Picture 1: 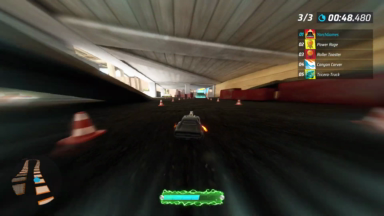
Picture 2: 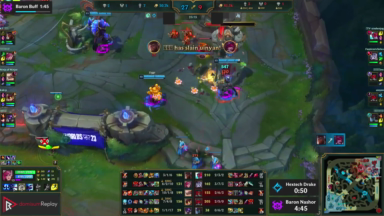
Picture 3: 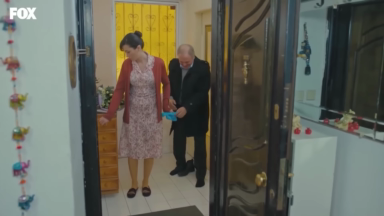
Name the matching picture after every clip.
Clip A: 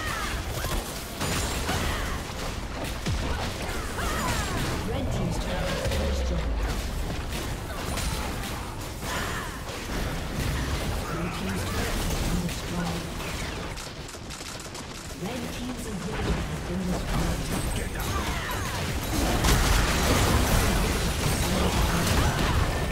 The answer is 2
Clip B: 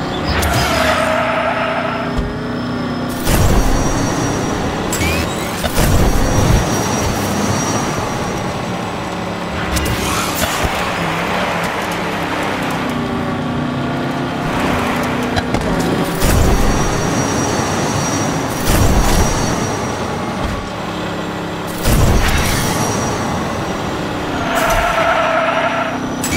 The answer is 1